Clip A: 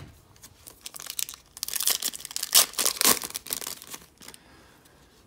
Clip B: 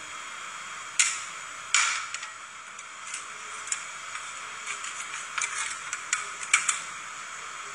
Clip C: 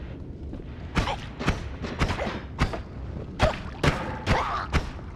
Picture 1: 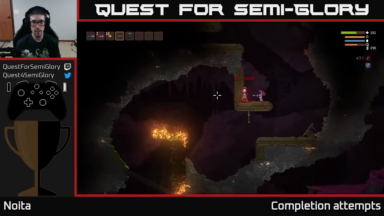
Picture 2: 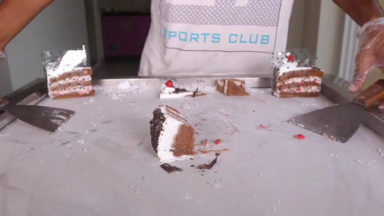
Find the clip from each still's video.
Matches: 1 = C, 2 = B